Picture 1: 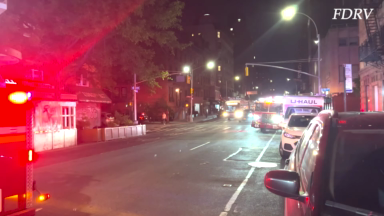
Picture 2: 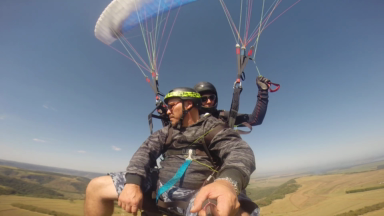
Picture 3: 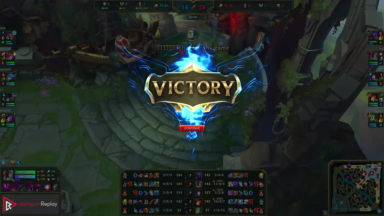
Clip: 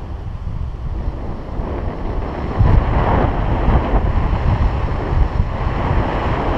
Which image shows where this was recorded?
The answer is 2